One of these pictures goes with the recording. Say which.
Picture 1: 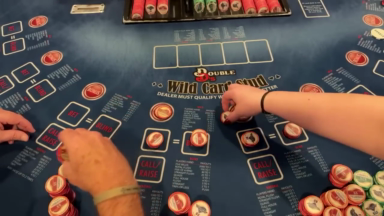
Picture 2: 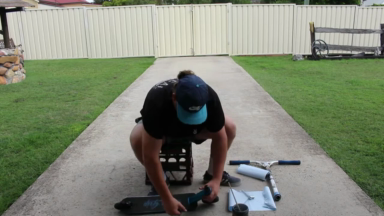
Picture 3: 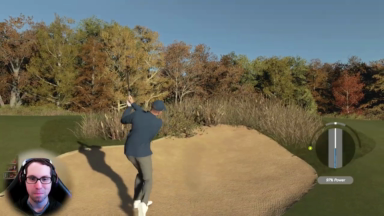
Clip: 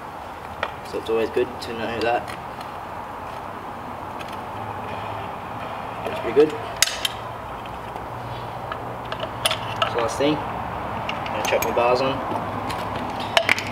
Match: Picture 2